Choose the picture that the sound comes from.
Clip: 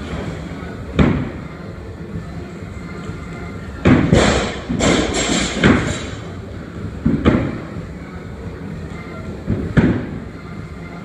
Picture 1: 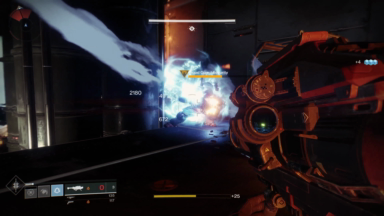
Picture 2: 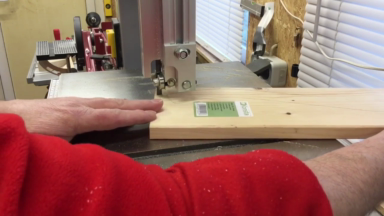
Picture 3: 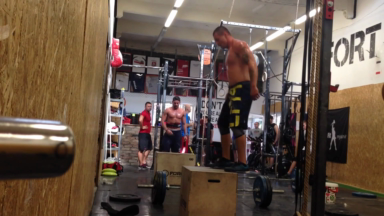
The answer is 3